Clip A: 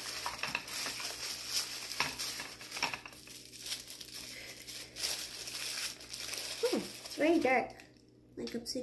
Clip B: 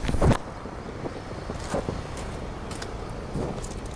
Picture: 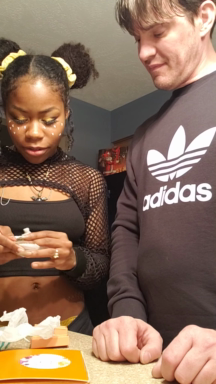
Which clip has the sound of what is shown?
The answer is A